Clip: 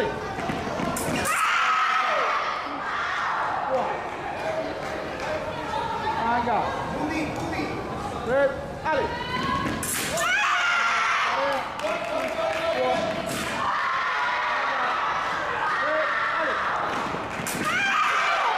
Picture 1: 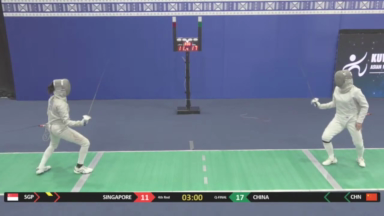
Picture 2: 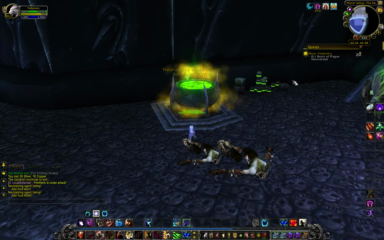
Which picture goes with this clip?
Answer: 1